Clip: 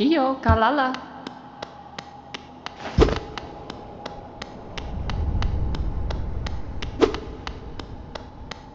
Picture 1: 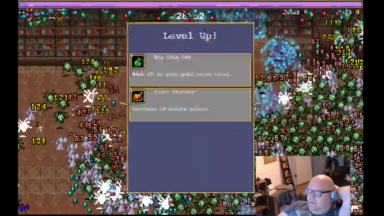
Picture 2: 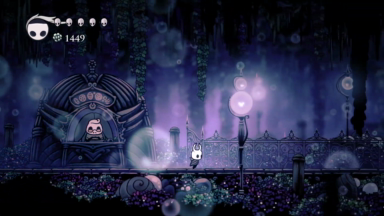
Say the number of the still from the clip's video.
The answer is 2